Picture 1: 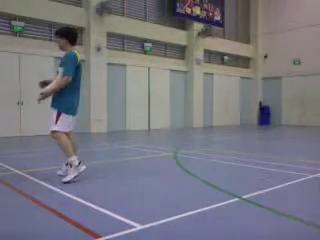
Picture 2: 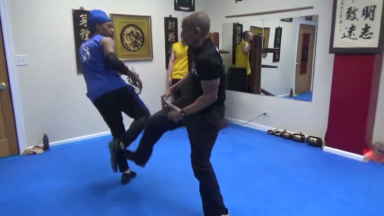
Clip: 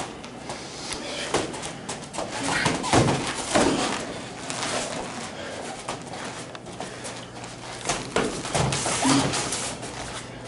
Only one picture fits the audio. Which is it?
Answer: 2